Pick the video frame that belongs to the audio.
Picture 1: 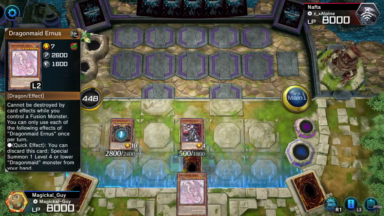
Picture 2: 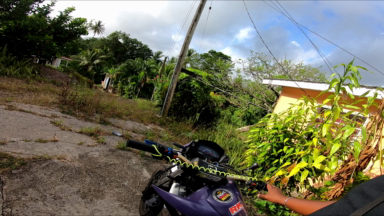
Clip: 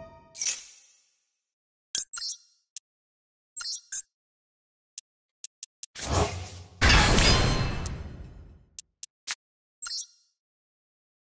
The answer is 1